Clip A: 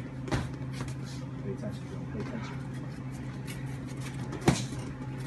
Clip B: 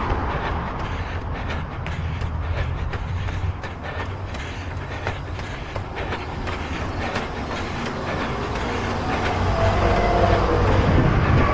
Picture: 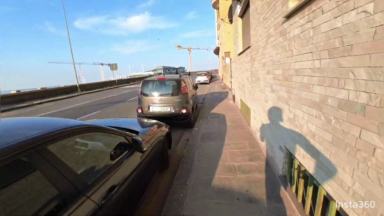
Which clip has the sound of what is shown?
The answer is B